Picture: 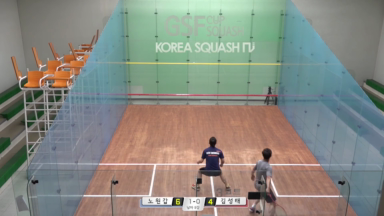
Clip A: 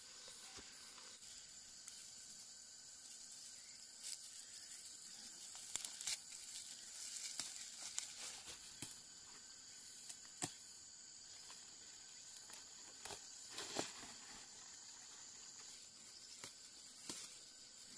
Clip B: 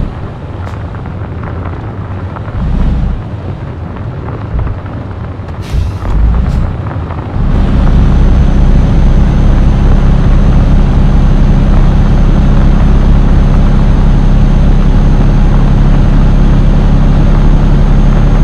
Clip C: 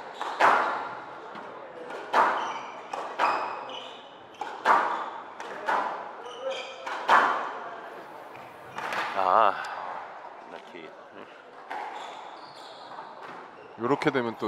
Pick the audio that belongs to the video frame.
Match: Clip C